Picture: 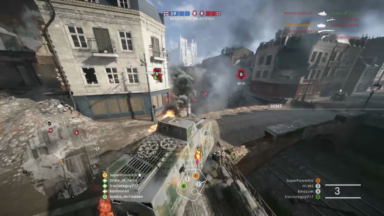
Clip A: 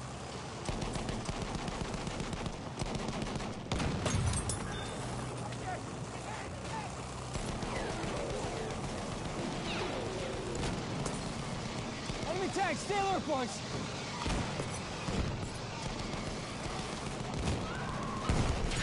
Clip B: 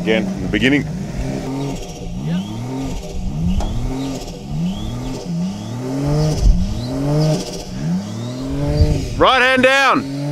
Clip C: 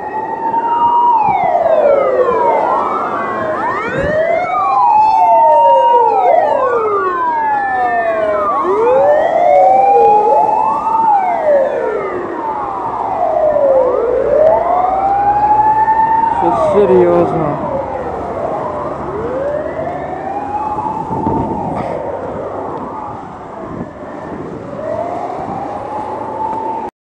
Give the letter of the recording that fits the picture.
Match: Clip A